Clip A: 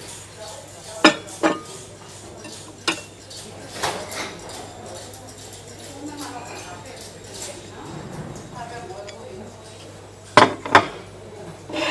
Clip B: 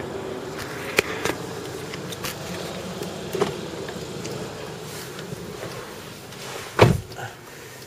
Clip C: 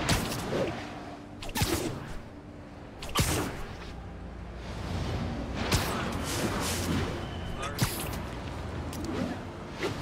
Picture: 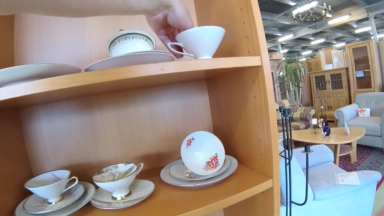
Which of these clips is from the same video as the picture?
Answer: A